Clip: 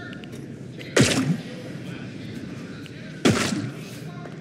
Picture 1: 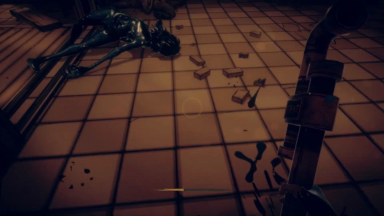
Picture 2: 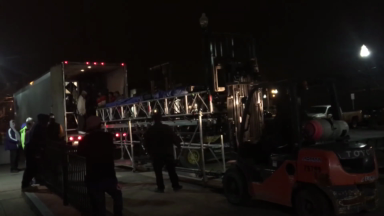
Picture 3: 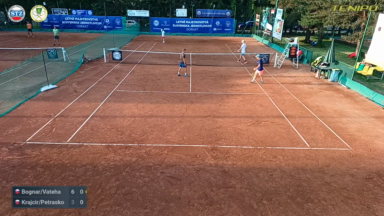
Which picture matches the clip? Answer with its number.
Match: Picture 1